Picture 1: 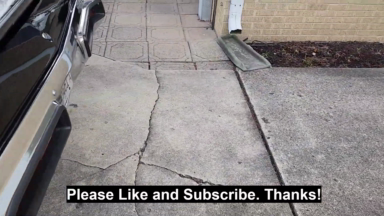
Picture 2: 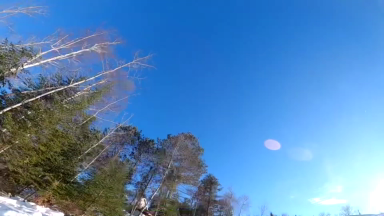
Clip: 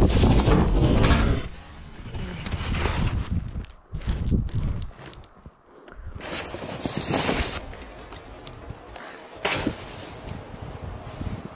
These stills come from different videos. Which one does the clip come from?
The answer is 2